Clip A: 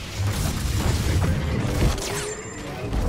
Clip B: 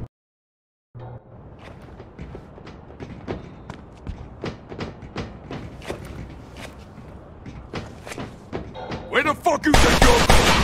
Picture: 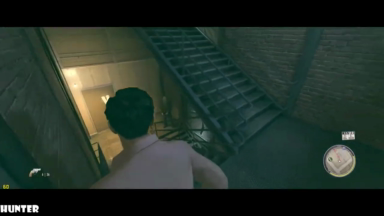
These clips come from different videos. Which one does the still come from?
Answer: B